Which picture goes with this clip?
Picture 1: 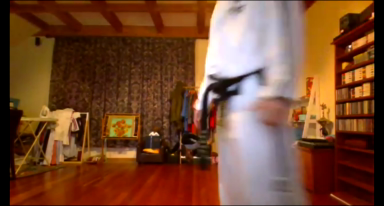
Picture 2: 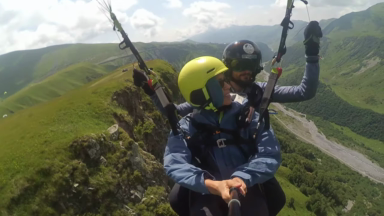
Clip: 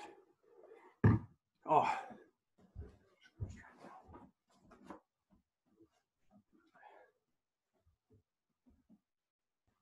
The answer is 1